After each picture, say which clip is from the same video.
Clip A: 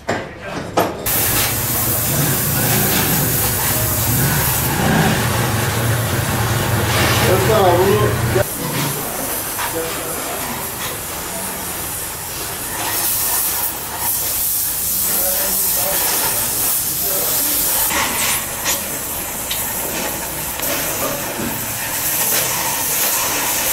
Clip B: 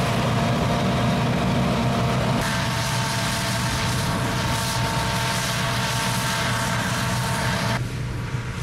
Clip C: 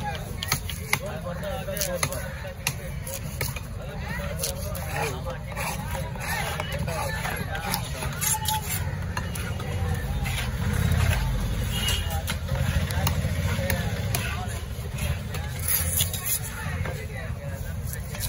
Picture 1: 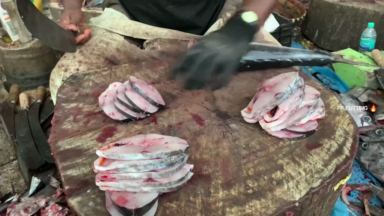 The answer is C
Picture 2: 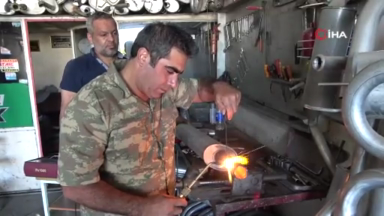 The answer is A